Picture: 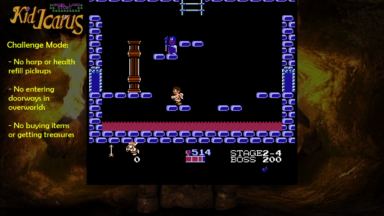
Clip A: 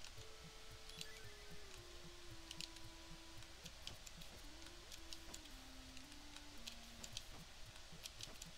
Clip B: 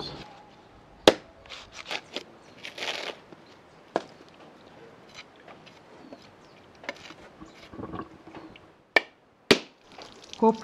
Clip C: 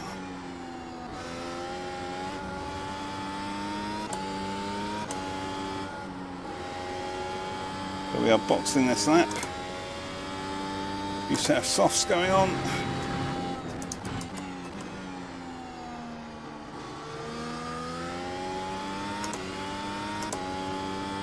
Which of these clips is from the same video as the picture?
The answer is A